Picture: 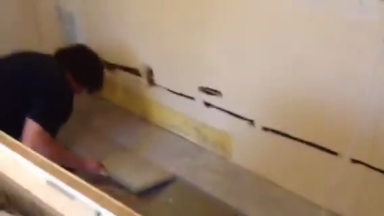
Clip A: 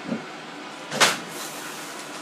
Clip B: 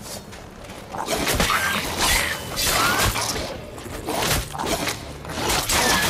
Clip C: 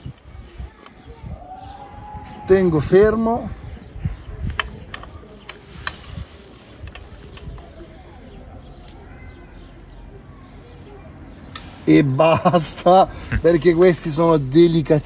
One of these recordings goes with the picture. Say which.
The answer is A